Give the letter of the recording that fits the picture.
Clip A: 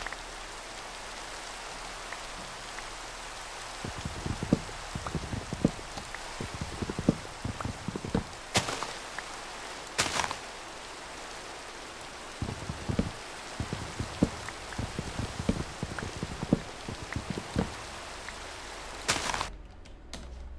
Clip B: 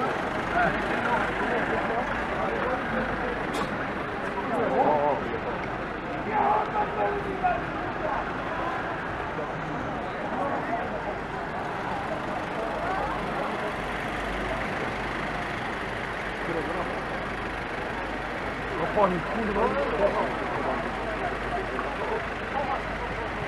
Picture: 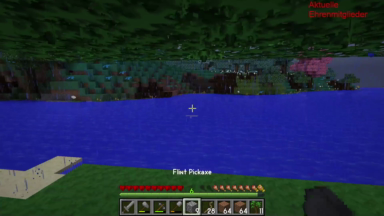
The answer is A